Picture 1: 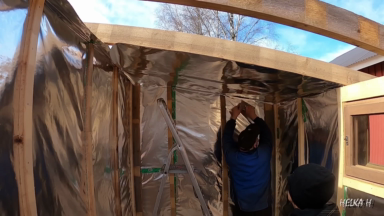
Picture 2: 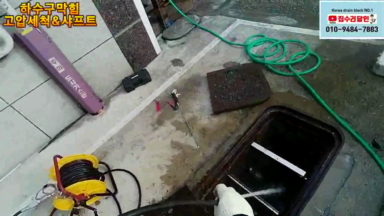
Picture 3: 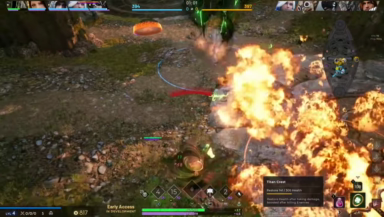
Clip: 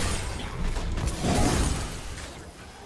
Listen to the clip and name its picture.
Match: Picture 3